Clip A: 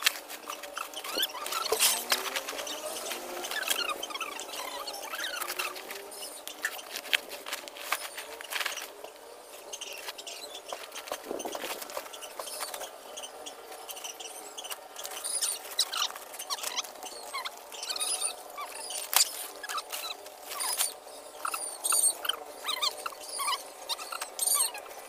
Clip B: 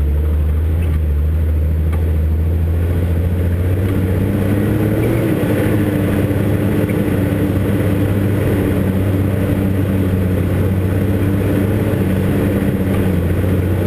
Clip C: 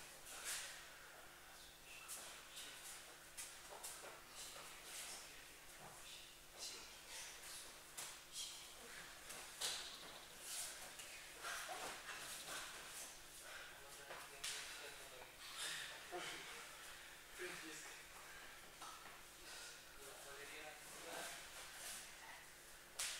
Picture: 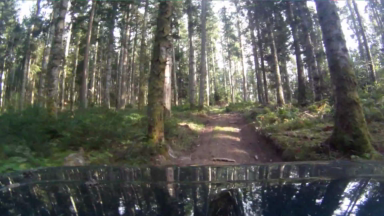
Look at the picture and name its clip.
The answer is B